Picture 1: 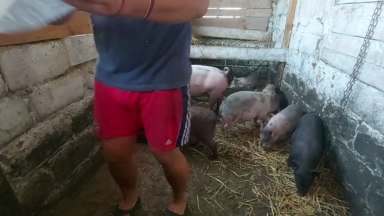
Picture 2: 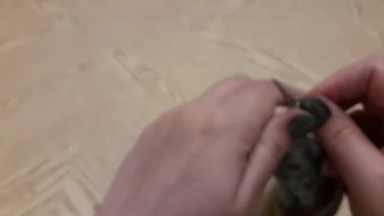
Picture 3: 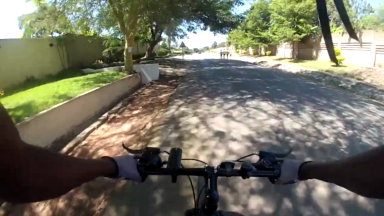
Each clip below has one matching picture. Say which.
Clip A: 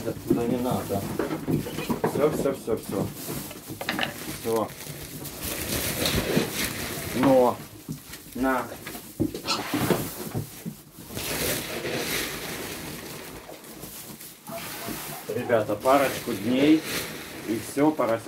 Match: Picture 1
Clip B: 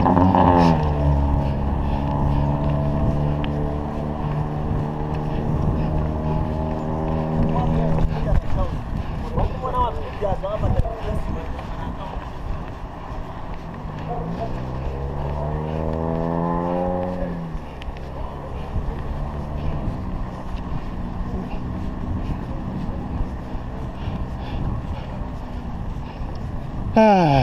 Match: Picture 3